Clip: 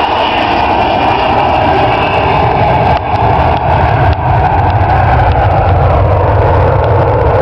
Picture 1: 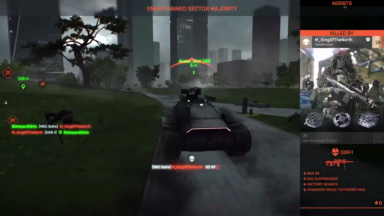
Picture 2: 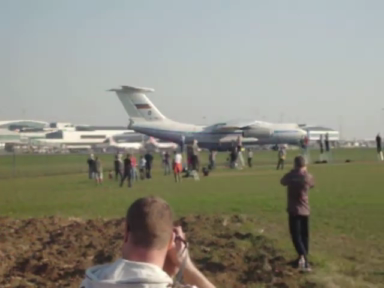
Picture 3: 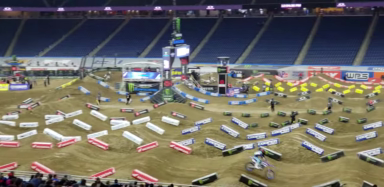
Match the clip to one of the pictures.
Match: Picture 2